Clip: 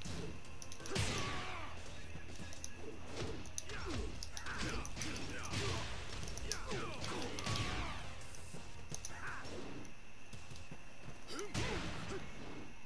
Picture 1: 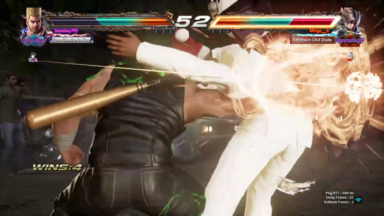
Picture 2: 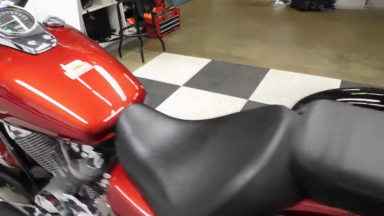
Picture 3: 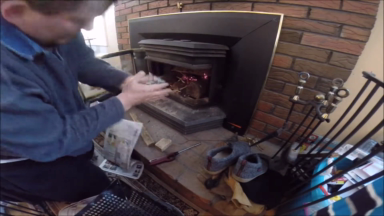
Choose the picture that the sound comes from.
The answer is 1